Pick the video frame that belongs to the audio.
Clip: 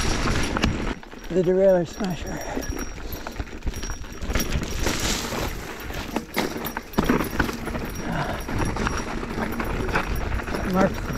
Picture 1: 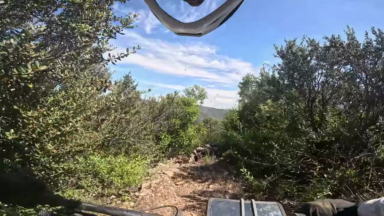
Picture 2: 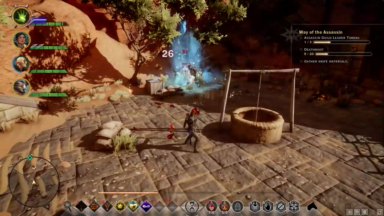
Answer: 1